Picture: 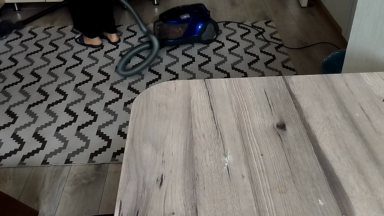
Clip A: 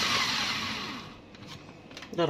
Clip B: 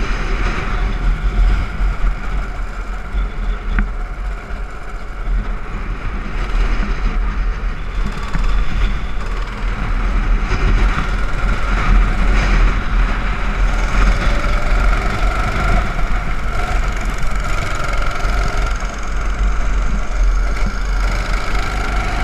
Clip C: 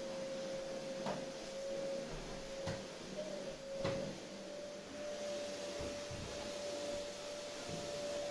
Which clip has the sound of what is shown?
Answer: C